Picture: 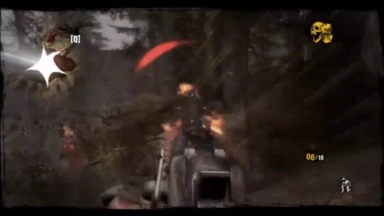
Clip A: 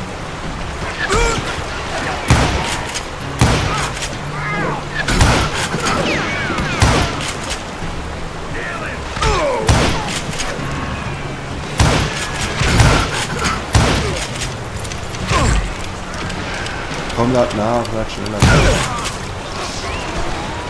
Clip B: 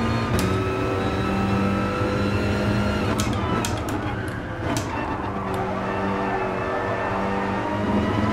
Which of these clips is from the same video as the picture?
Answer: A